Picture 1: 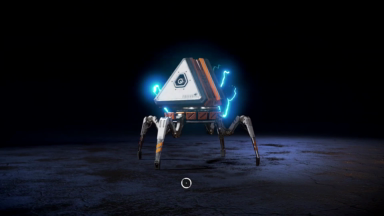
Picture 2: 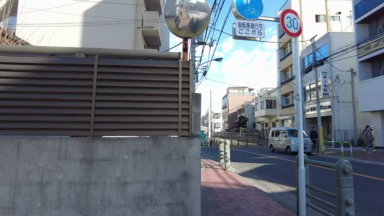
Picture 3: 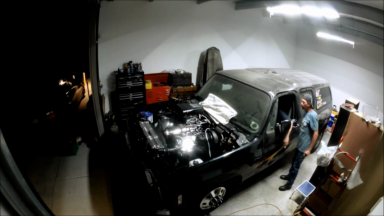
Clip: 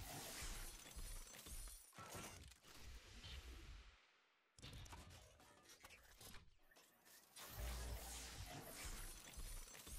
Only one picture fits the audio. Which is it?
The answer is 1